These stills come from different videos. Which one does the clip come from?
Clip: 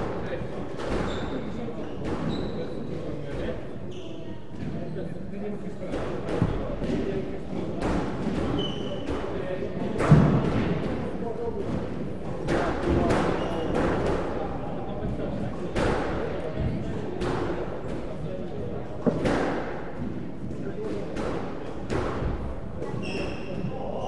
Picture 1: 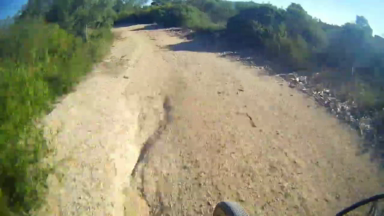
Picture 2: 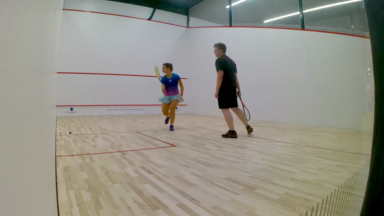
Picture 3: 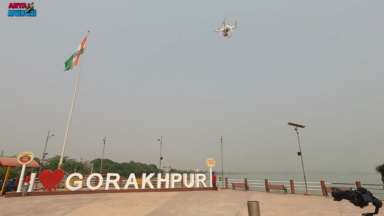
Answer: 2